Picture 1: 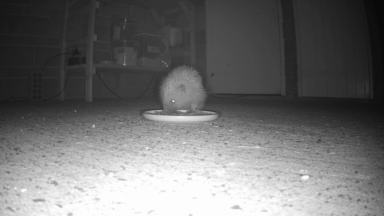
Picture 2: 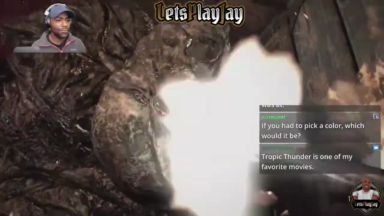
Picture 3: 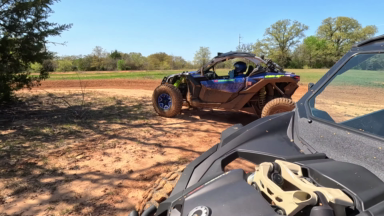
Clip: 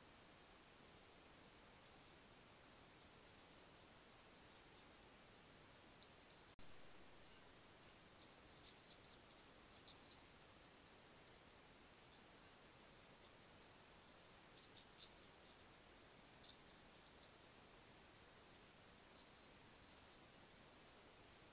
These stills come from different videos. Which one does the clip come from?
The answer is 1